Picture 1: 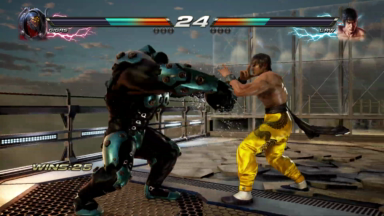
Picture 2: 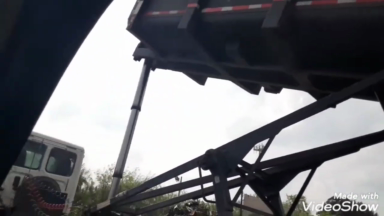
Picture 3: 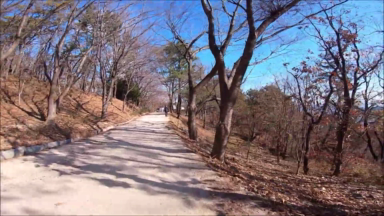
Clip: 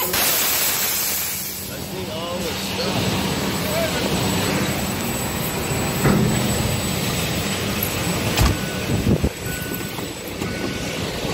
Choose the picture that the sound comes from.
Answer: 2